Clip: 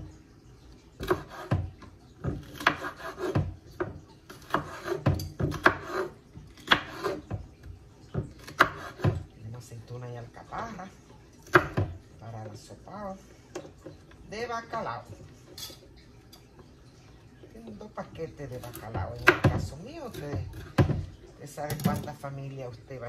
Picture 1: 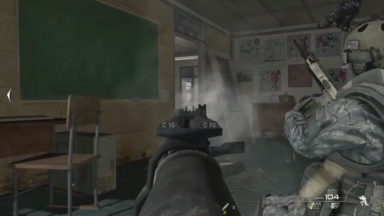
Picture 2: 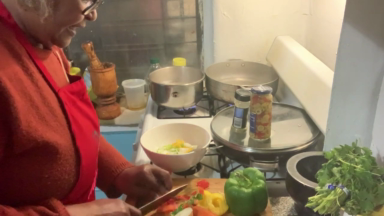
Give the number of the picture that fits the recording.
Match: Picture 2